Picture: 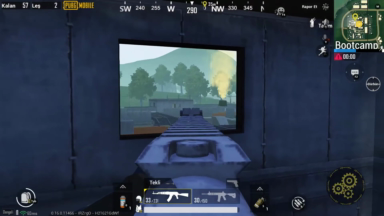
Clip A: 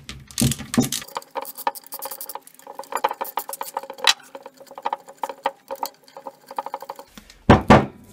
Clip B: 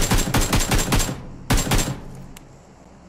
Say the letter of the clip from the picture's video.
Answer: B